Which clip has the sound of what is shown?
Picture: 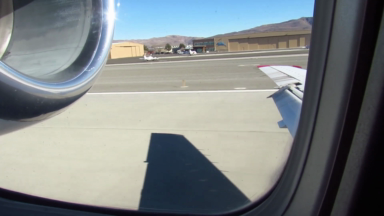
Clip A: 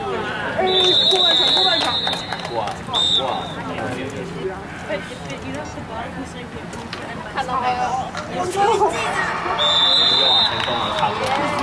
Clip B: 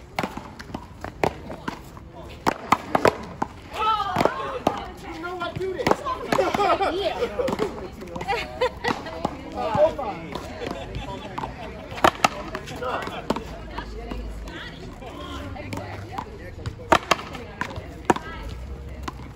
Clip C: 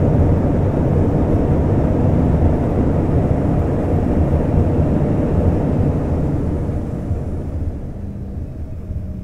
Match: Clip C